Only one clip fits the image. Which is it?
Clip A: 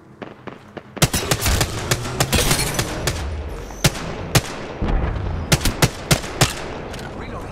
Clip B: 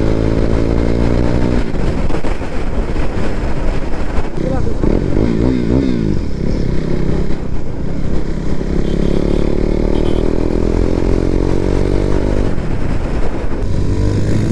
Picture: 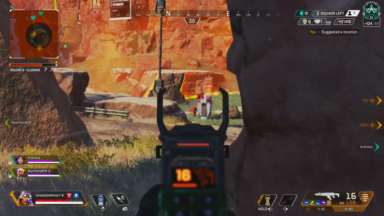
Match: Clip A